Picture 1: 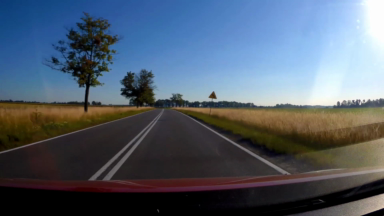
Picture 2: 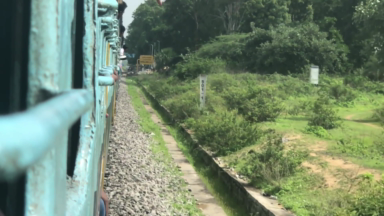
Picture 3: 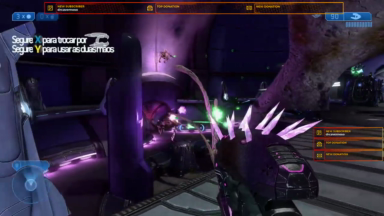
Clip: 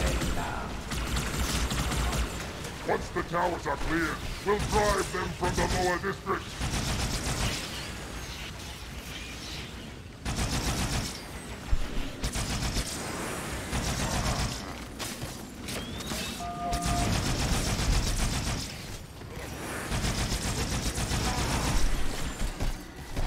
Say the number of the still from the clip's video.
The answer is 3